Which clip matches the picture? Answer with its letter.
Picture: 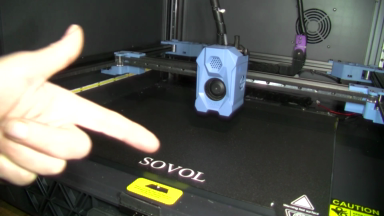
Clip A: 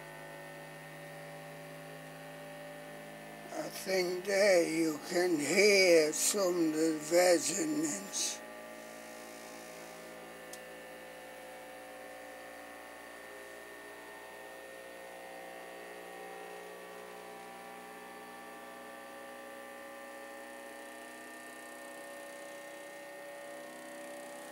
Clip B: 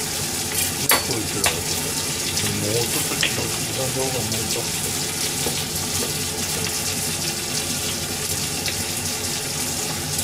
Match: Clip A